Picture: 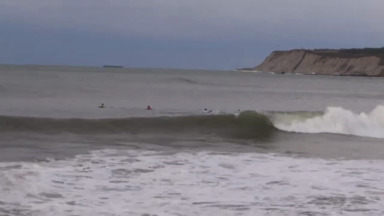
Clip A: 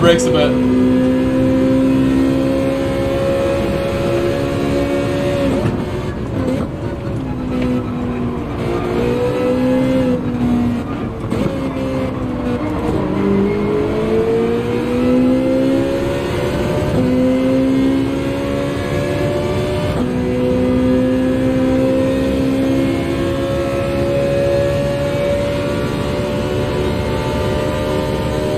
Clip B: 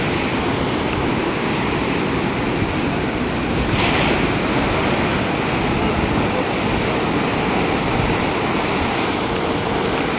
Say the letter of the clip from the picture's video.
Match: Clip B